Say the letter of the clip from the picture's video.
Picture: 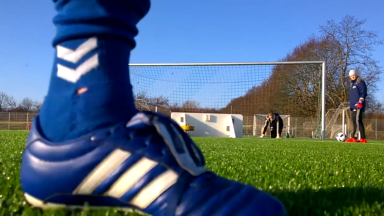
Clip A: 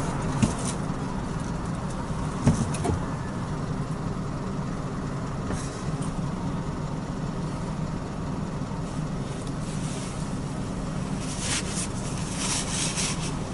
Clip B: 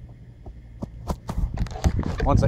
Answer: B